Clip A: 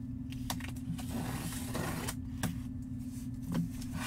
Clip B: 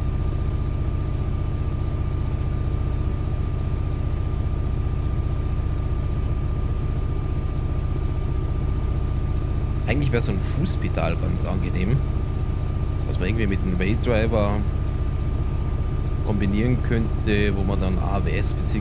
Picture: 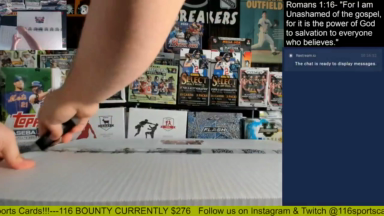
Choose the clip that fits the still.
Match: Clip A